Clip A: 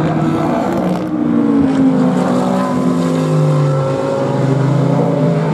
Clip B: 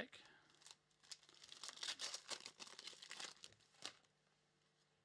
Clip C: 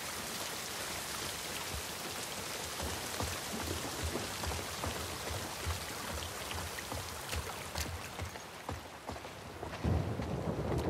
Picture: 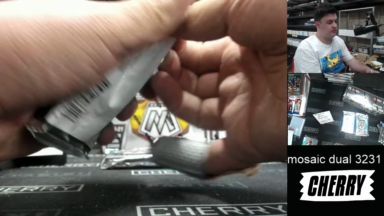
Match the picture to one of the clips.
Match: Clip B